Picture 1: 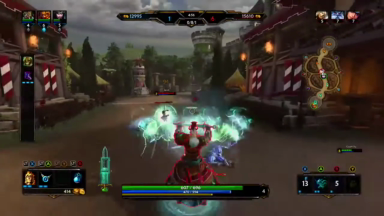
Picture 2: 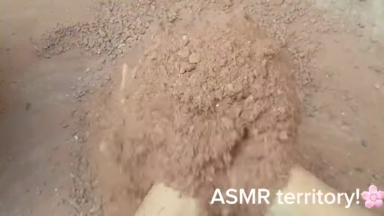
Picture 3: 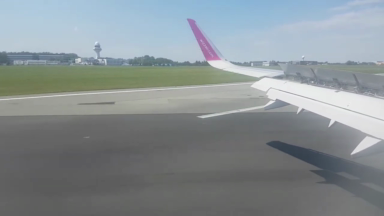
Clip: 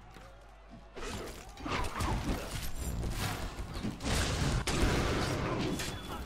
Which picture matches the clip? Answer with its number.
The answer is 1